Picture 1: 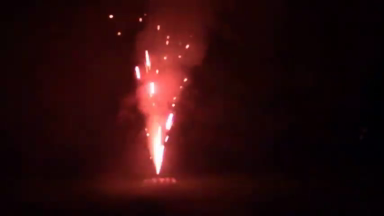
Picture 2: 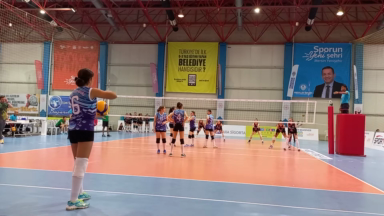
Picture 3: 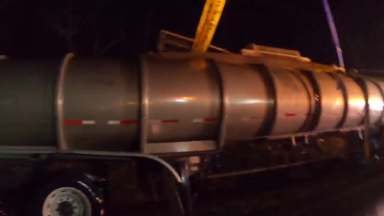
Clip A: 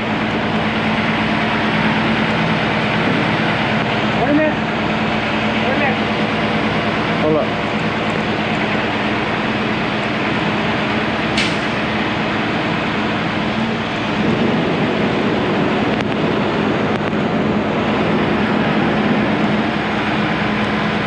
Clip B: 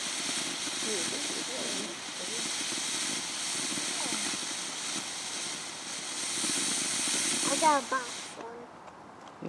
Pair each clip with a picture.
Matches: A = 3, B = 1